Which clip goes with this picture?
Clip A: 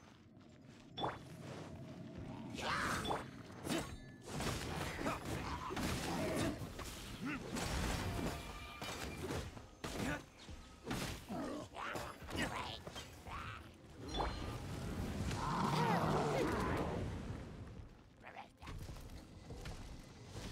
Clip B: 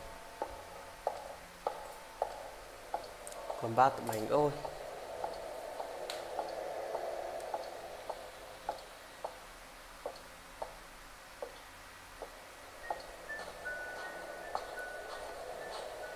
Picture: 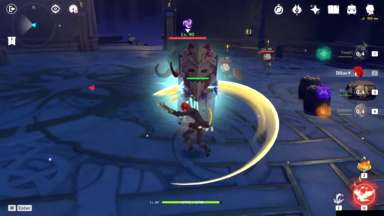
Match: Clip A